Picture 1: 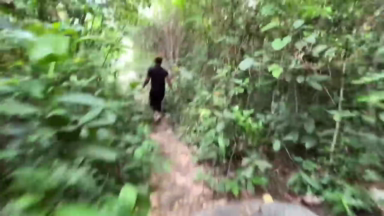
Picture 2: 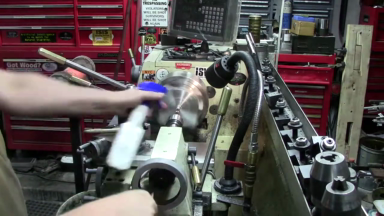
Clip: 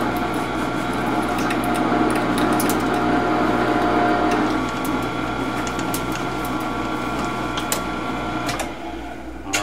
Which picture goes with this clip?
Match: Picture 2